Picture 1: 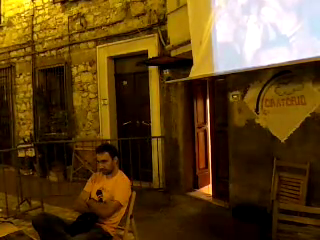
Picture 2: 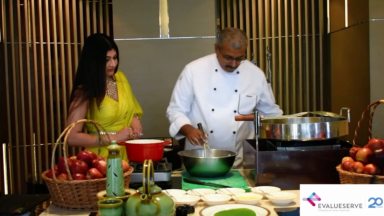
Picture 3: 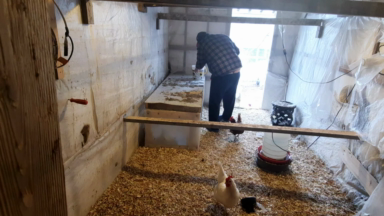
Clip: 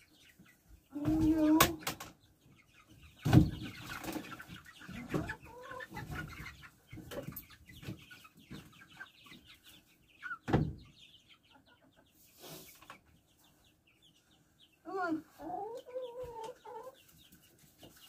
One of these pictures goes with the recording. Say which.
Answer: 3